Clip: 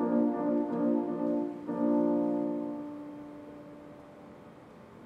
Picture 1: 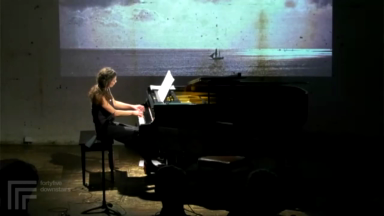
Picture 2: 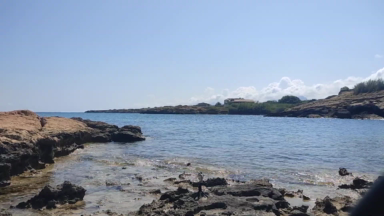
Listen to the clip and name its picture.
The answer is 1